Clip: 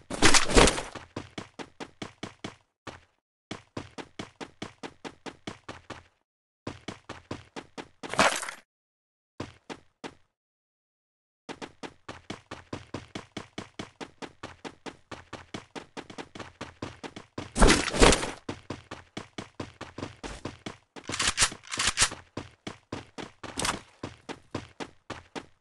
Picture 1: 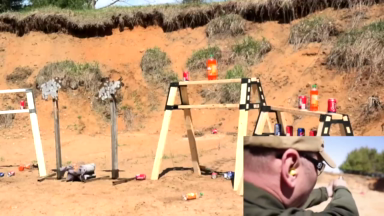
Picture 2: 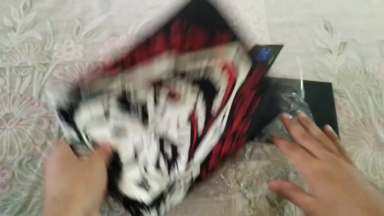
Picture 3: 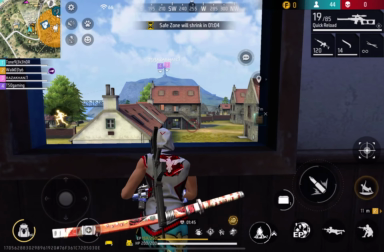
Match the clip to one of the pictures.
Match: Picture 3